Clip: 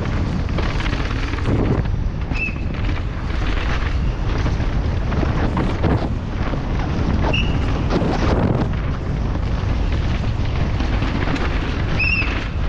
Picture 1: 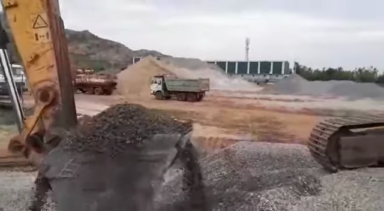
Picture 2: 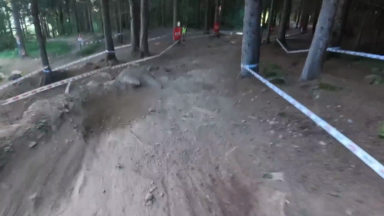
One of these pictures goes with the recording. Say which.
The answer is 2